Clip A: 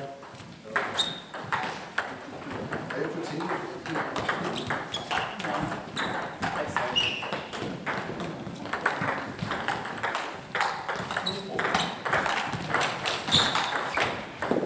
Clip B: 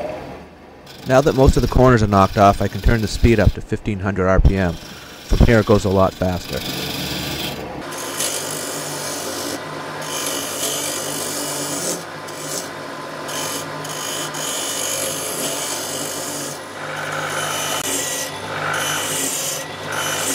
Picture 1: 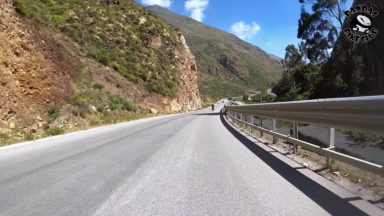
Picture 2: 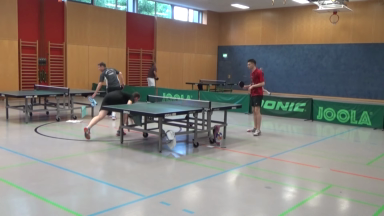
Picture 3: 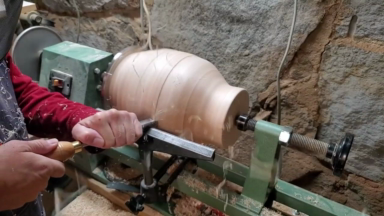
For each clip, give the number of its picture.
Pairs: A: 2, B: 3